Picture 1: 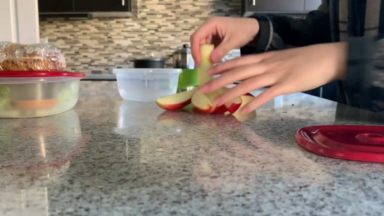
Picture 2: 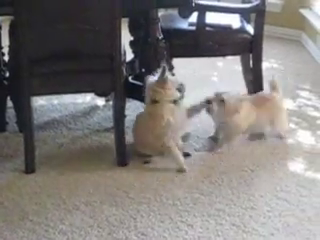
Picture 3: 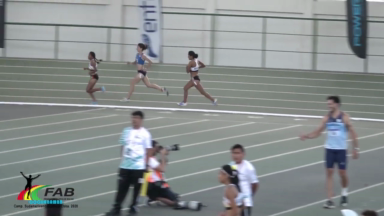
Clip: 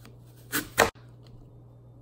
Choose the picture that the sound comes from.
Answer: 1